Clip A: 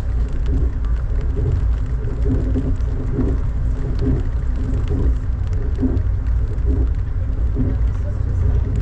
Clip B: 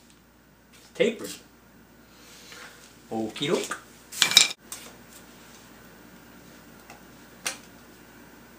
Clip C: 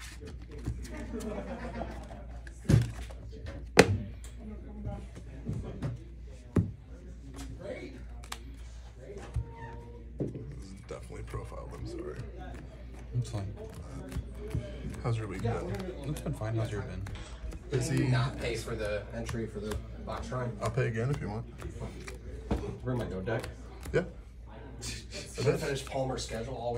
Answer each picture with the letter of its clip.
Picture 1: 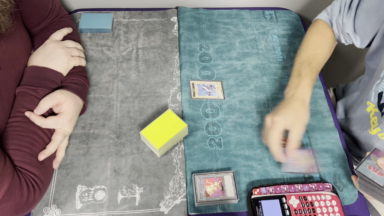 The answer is C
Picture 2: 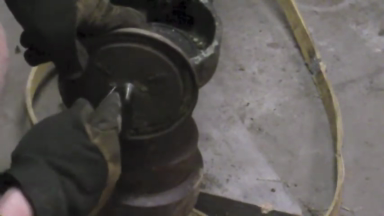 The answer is B